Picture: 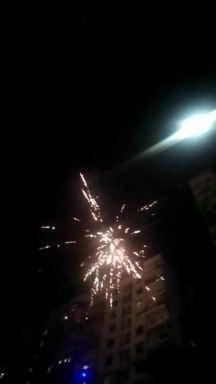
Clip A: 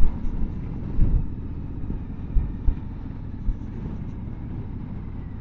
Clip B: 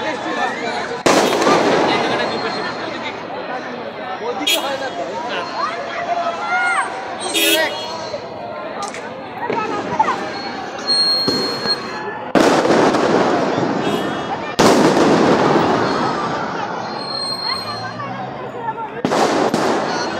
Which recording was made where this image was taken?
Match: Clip B